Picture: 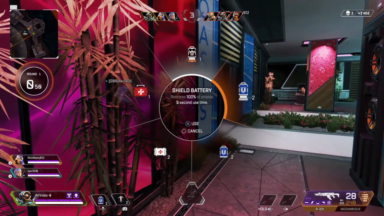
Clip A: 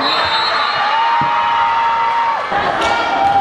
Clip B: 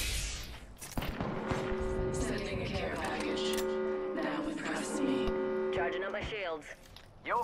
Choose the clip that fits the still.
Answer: B